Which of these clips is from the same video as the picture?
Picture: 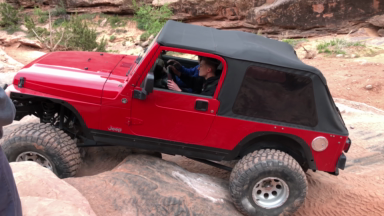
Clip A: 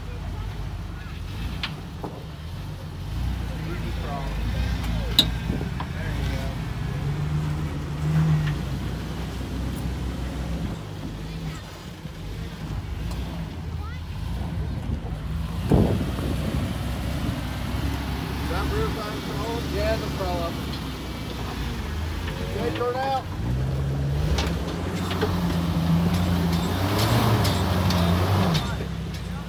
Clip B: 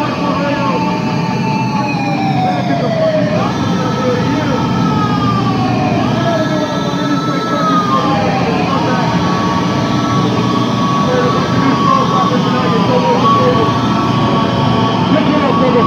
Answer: A